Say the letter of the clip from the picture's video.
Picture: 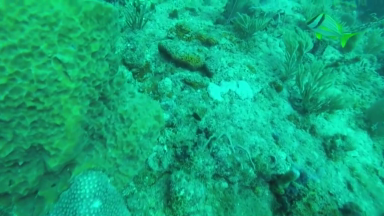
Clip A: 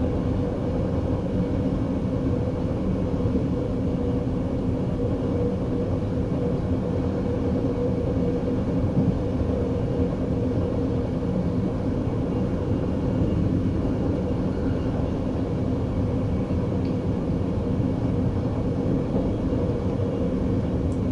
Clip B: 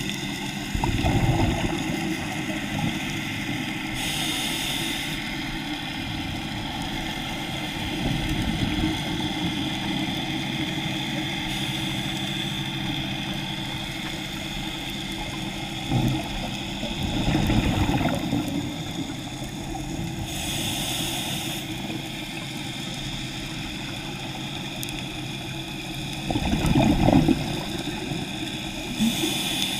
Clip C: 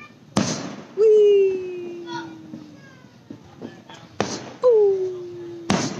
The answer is B